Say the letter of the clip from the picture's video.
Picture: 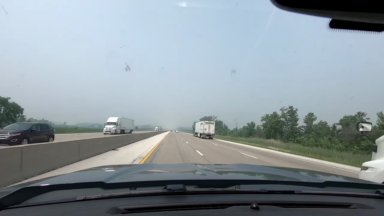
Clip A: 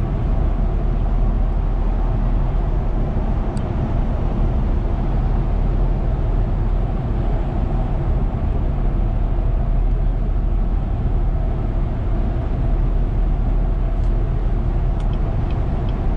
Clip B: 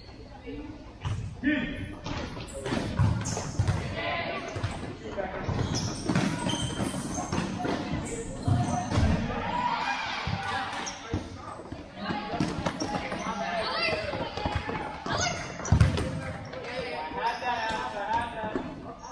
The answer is A